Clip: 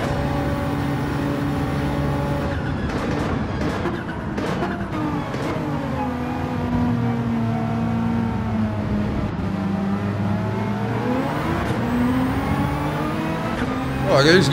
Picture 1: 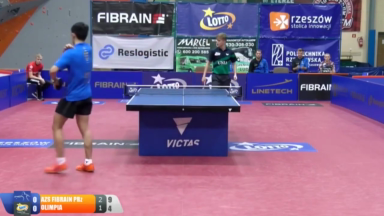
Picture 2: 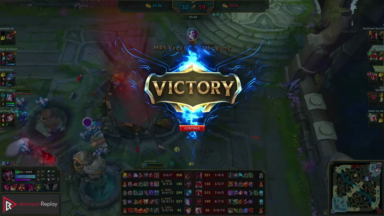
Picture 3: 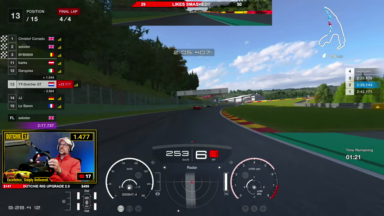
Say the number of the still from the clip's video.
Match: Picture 3